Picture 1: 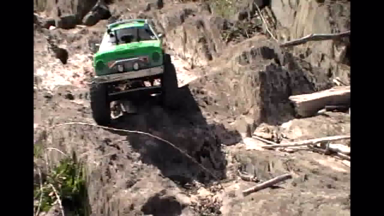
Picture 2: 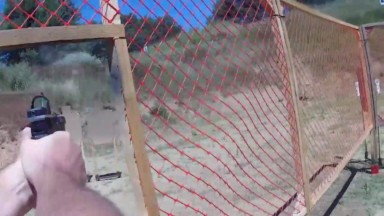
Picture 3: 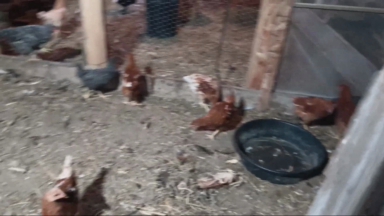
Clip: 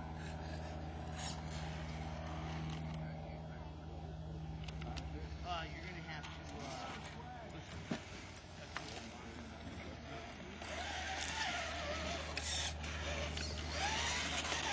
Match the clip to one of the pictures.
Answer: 1